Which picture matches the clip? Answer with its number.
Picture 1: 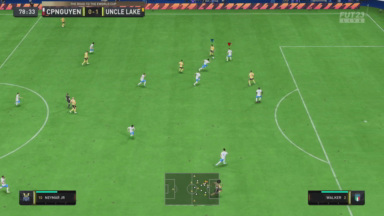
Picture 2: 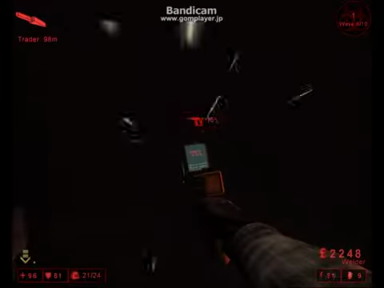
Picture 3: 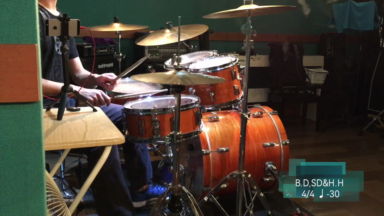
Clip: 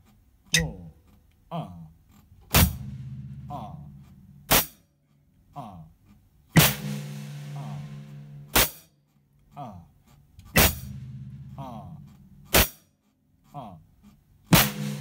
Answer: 3